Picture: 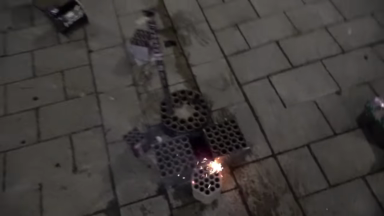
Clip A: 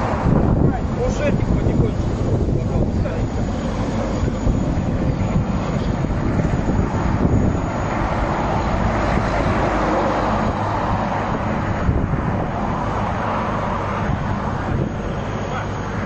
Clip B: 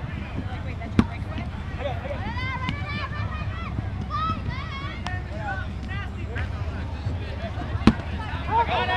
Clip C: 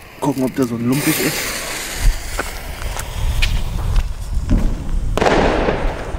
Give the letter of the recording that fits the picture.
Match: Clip C